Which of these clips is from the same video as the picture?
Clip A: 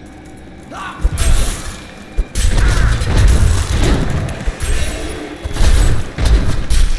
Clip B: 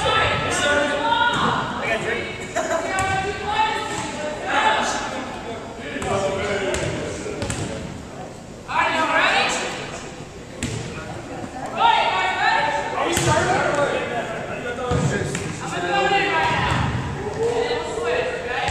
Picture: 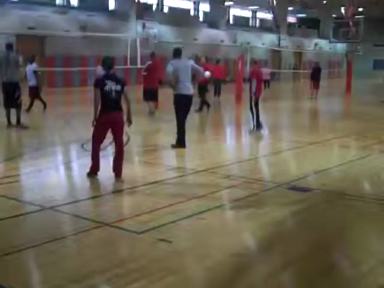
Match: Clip B